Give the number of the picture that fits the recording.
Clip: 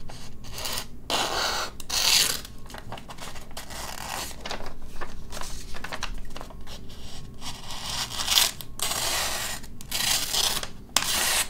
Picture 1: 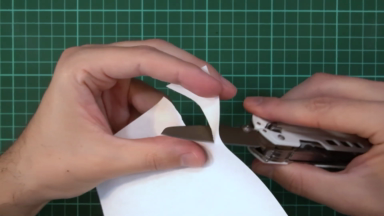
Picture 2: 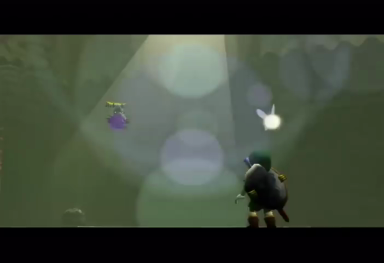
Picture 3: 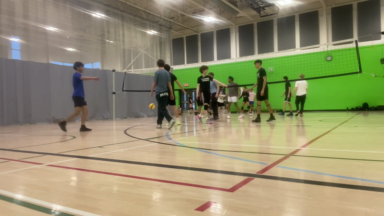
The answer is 1